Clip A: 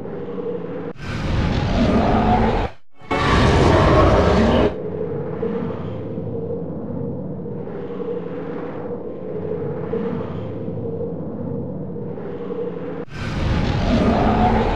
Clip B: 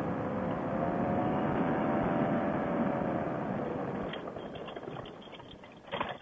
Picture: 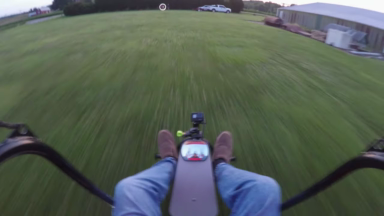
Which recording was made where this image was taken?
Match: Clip B